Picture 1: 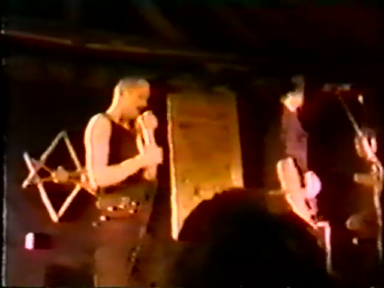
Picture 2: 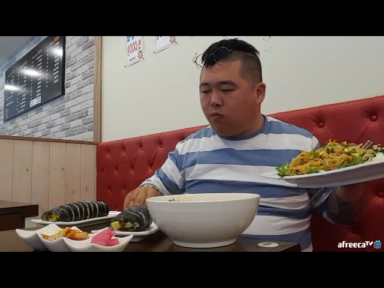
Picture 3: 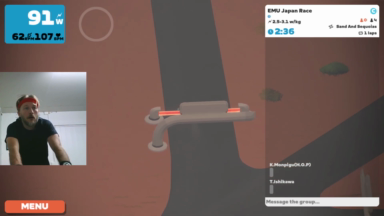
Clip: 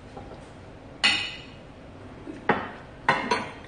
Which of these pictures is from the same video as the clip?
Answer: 2